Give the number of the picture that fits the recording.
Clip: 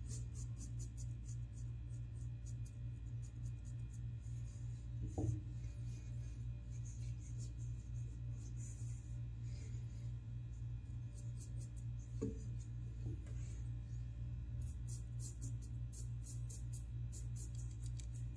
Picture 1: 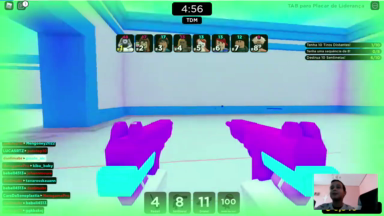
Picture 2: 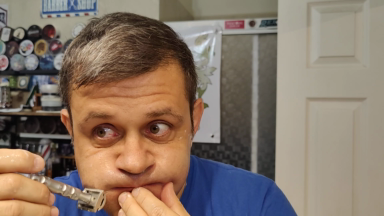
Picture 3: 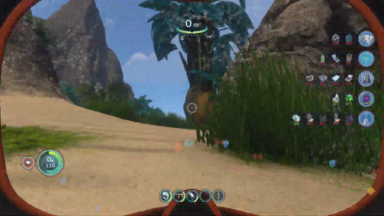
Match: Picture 2